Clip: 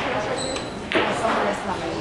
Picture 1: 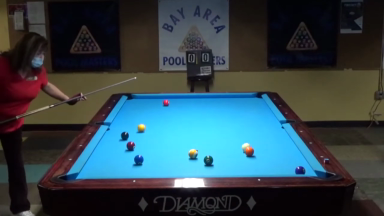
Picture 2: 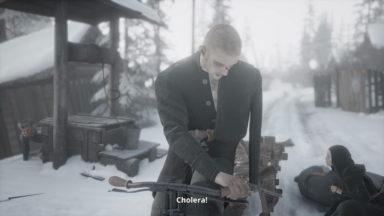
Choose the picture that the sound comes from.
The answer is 1